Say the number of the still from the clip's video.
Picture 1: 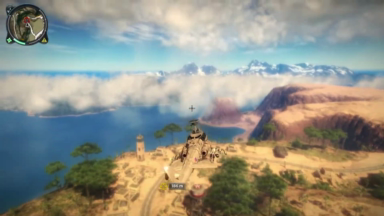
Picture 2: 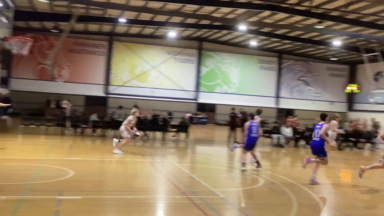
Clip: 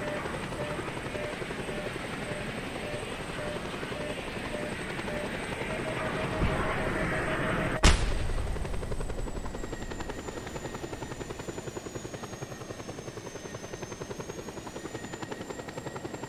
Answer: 1